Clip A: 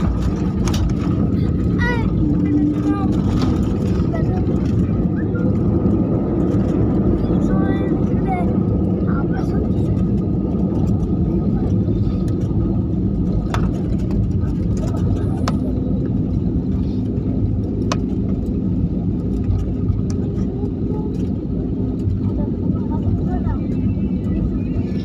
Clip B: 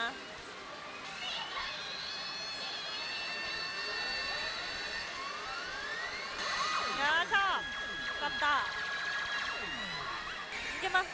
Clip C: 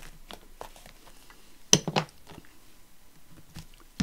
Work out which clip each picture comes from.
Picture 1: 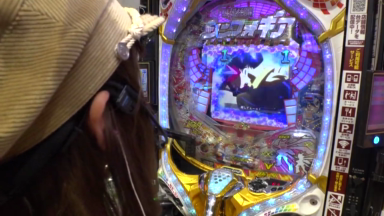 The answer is B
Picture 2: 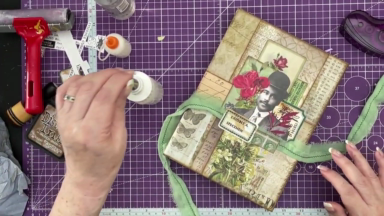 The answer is C